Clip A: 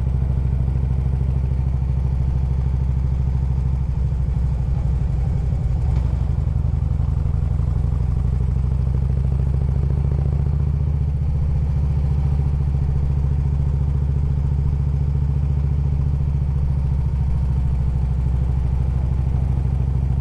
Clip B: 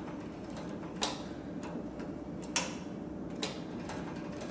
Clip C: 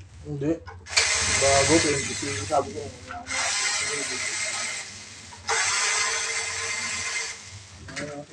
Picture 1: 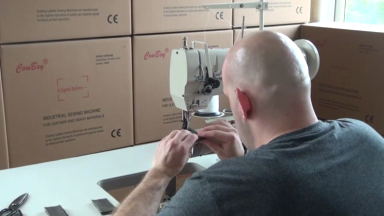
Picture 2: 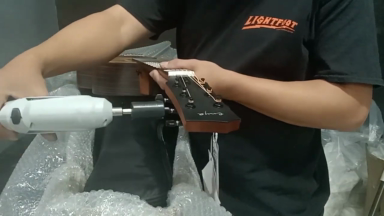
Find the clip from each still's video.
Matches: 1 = B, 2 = C